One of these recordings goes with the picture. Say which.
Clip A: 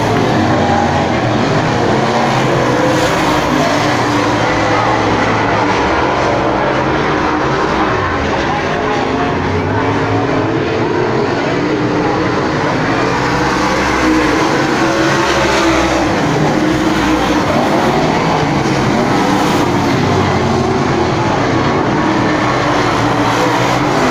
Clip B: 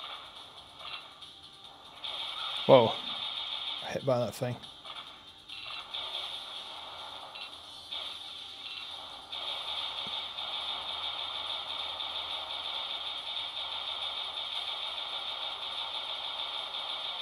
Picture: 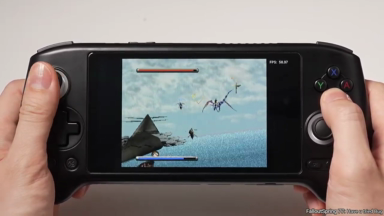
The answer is B